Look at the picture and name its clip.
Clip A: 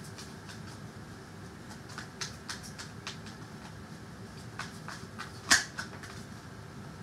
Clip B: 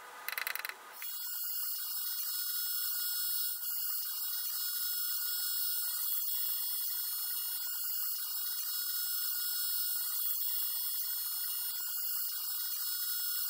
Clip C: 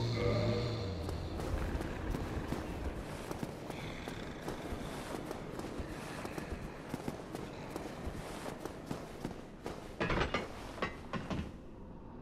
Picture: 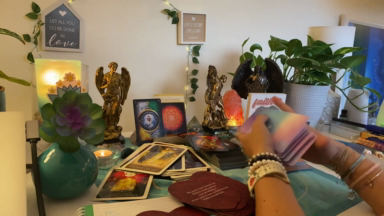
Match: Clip A